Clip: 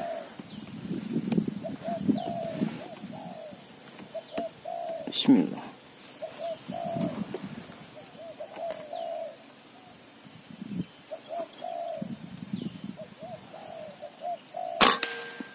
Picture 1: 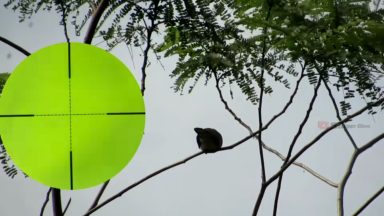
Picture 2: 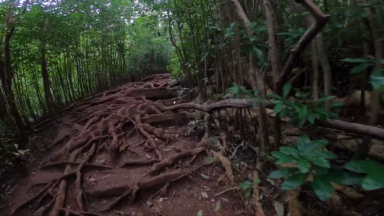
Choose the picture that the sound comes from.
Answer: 1